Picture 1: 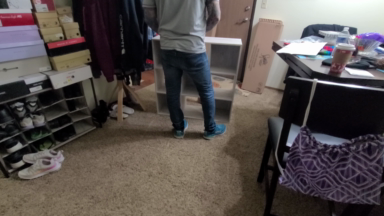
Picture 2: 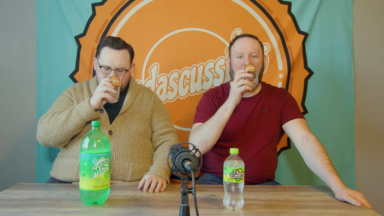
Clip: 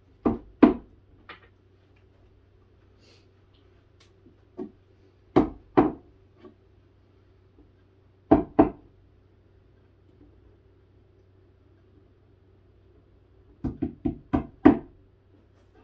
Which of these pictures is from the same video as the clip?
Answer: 1